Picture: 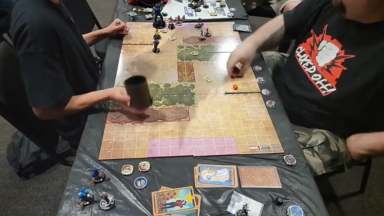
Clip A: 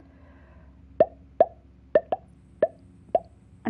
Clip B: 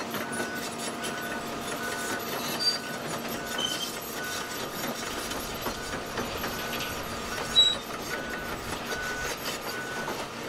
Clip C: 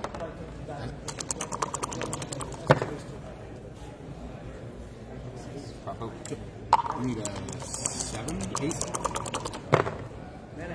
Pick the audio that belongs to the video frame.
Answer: C